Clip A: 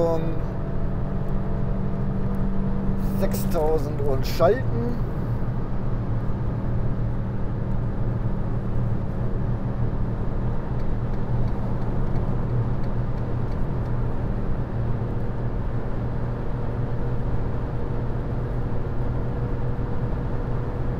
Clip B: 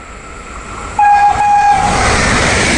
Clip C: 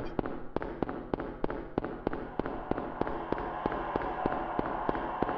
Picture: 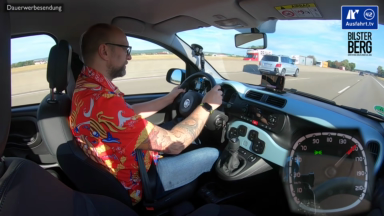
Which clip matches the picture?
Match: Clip A